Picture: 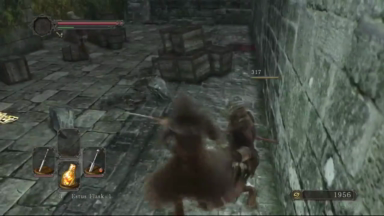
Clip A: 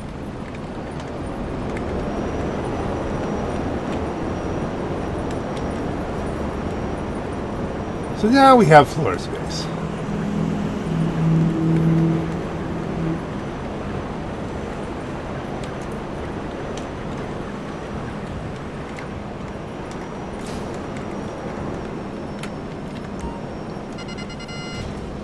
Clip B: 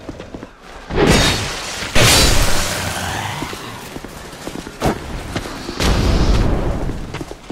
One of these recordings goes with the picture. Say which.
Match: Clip B